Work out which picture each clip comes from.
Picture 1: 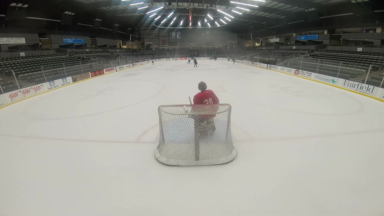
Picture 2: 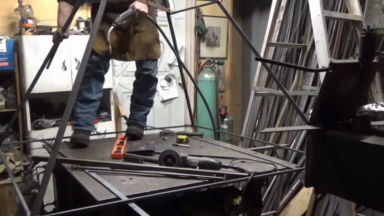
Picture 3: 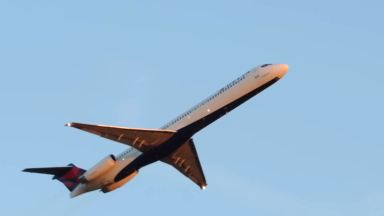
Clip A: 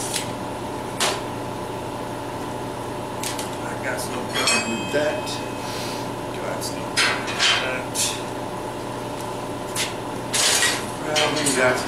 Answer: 2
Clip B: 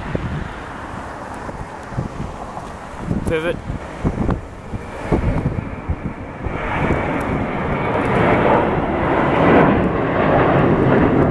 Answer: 3